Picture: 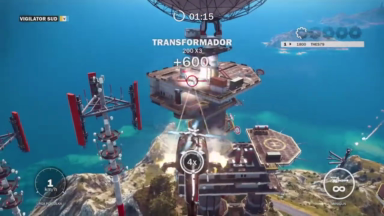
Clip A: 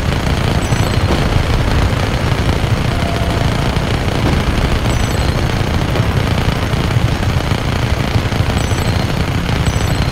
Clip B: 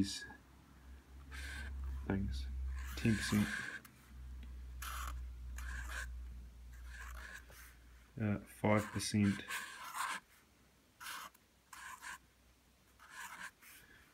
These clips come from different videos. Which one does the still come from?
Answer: A